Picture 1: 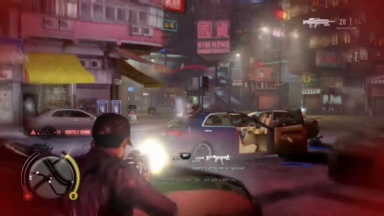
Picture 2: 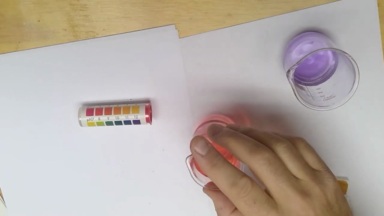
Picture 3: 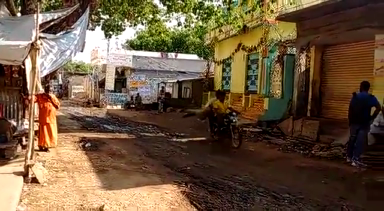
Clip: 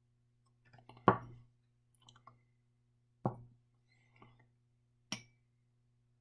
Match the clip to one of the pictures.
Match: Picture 2